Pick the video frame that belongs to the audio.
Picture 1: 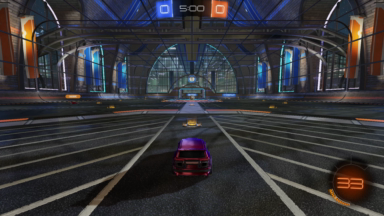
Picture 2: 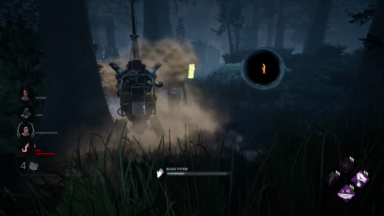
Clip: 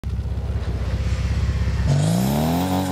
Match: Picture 1